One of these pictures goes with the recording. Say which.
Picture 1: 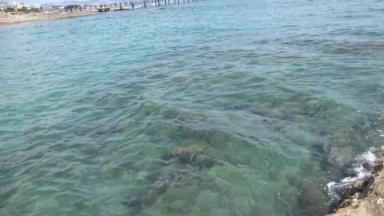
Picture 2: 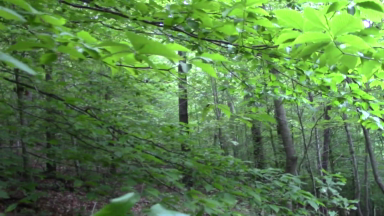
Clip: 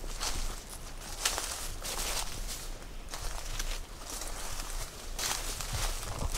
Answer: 2